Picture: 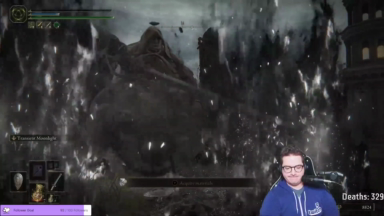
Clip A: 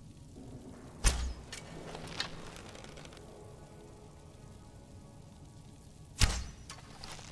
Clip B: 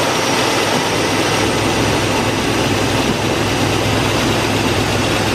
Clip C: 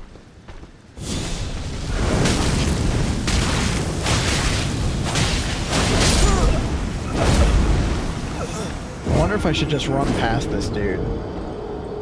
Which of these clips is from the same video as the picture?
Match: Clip C